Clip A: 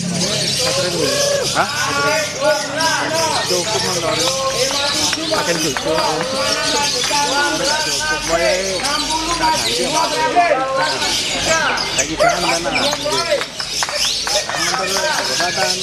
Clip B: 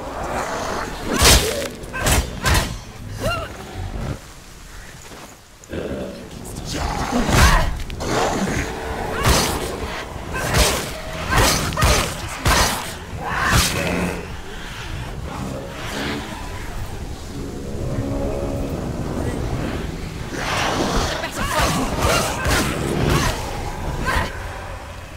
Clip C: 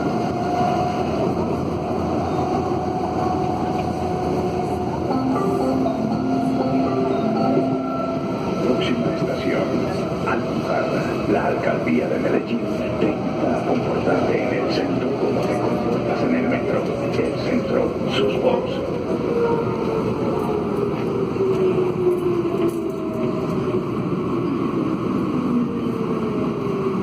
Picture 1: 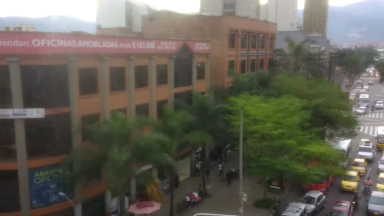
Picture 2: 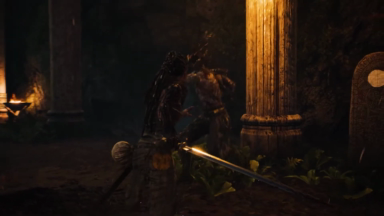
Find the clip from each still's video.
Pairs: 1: C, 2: B